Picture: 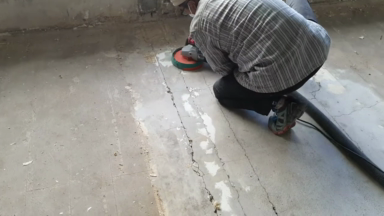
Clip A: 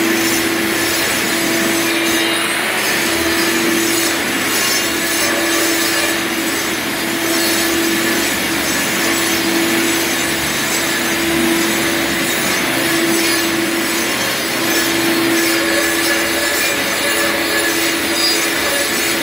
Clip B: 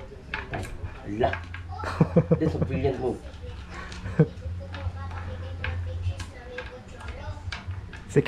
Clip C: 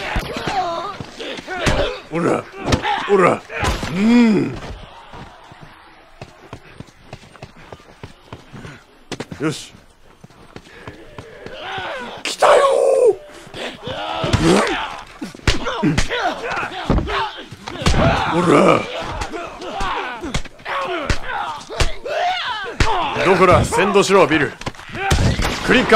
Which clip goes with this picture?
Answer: A